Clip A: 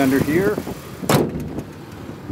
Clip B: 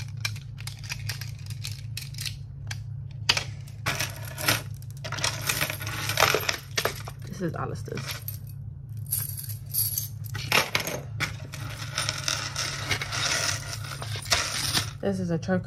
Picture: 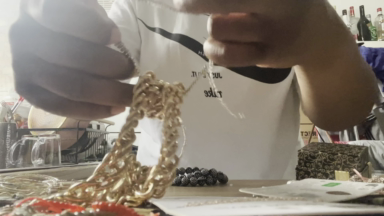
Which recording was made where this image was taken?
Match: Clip B